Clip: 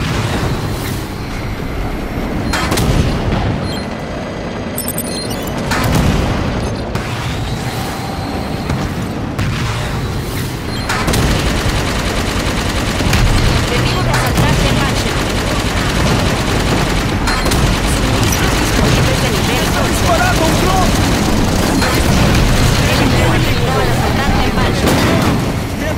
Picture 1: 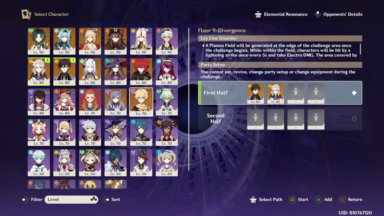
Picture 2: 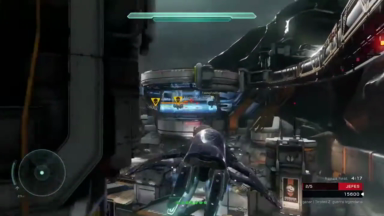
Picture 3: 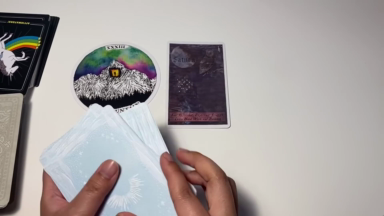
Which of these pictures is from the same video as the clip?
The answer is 2